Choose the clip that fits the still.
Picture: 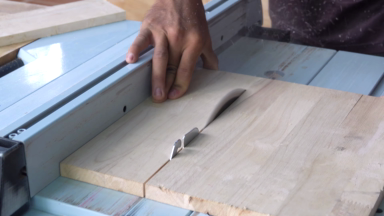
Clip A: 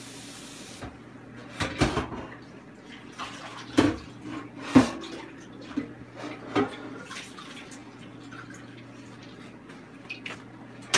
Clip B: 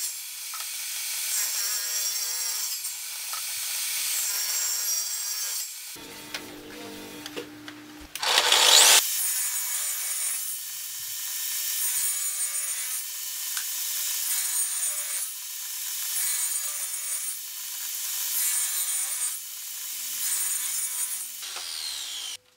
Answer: B